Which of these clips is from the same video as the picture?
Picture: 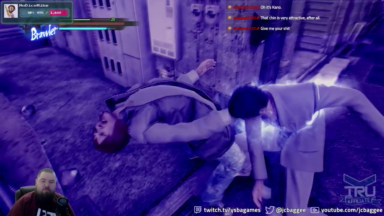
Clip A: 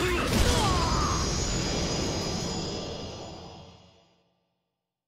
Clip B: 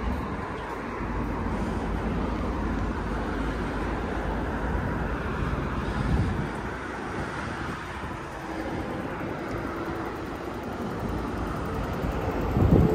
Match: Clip A